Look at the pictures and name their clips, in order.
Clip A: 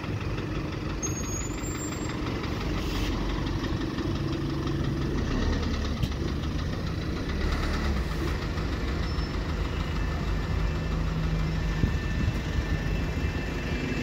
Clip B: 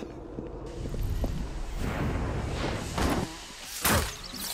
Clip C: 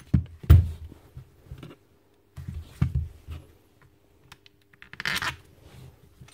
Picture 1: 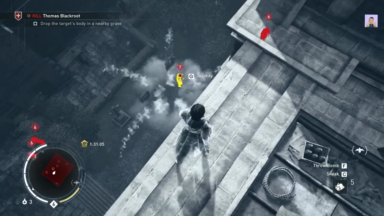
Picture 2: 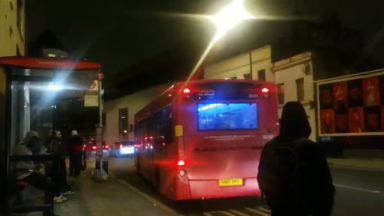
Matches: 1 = B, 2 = A